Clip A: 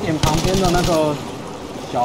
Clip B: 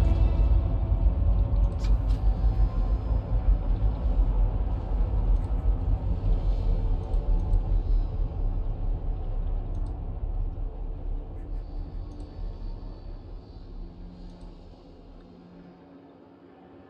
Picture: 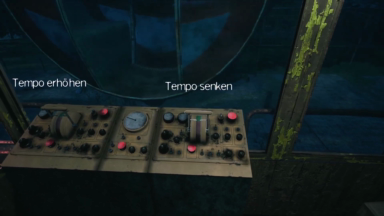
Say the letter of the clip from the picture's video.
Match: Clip B